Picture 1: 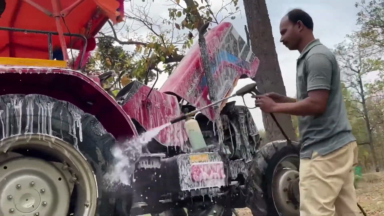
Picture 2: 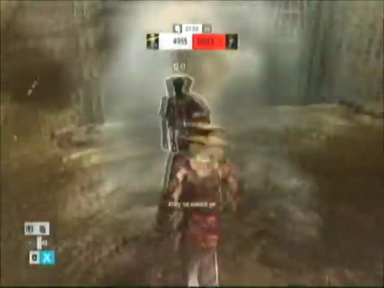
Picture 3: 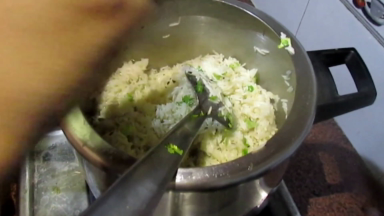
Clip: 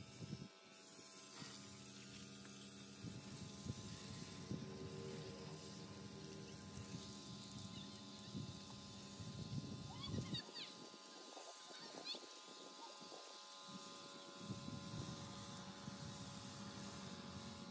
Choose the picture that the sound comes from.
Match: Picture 1